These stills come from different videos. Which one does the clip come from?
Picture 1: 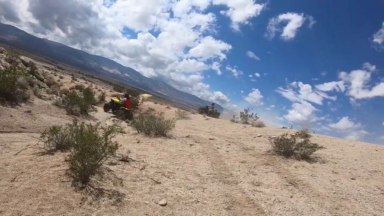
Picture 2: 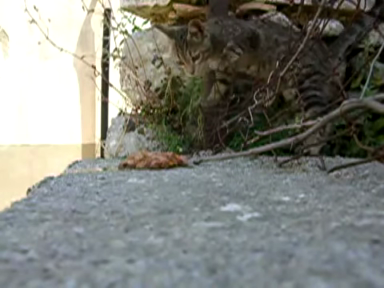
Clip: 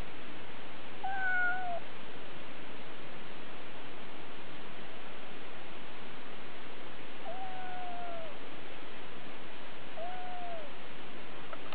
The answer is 2